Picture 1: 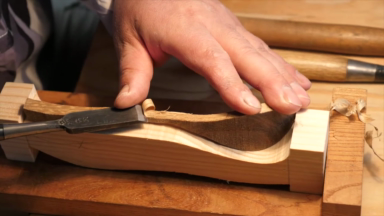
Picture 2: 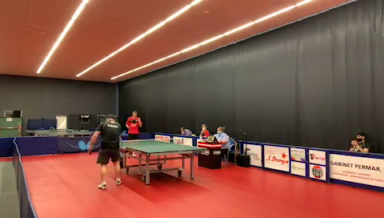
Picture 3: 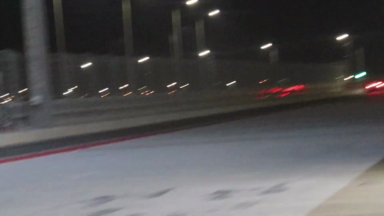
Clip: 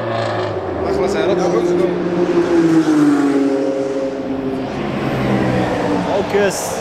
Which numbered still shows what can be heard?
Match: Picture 3